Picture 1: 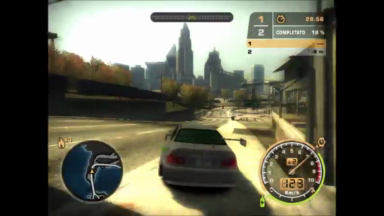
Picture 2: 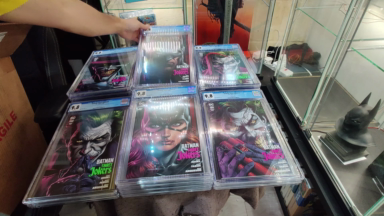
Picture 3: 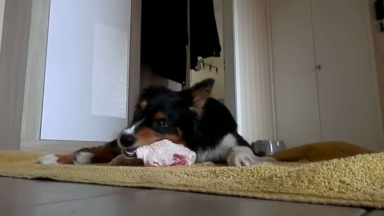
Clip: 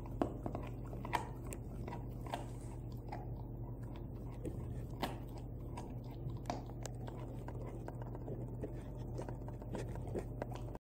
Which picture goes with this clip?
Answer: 3